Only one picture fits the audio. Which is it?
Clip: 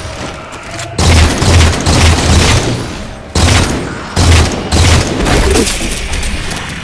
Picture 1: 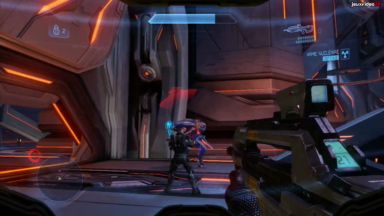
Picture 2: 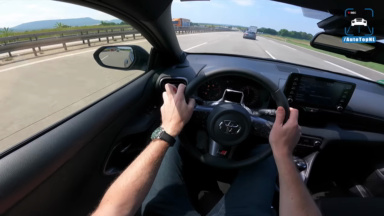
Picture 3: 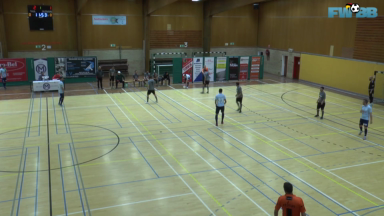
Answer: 1